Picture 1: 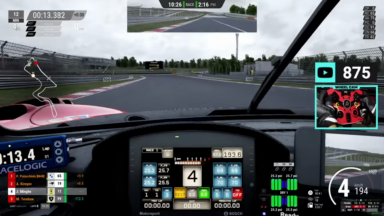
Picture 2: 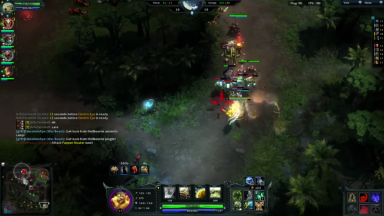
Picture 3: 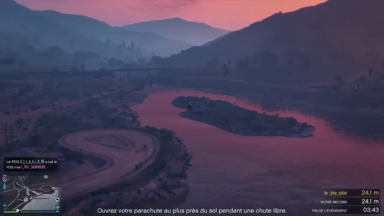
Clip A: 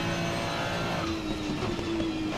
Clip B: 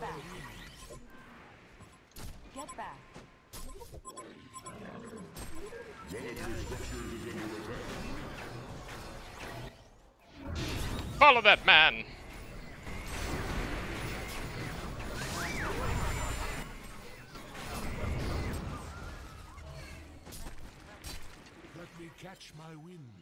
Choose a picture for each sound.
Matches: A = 1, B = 2